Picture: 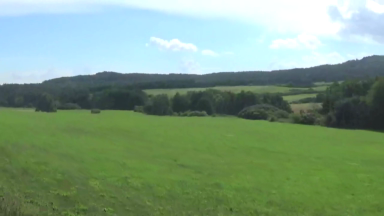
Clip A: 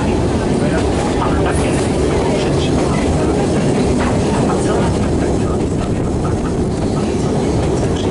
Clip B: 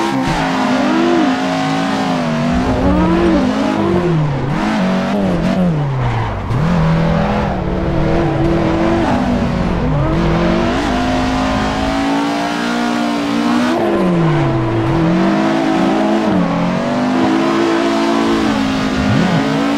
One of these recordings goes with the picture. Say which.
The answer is A